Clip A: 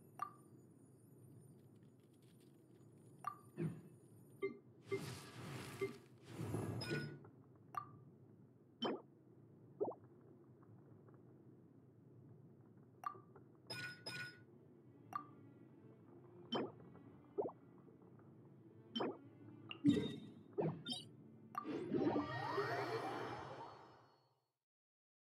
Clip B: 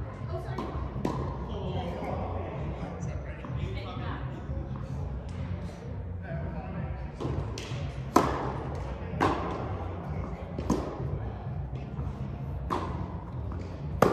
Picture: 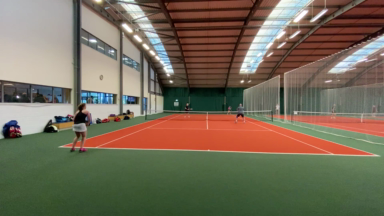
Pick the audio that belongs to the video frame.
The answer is B